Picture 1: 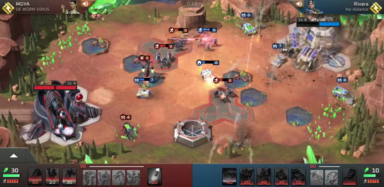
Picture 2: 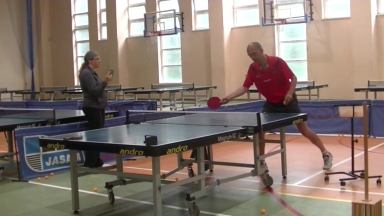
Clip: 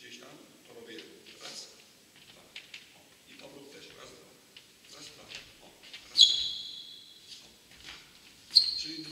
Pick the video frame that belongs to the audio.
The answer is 2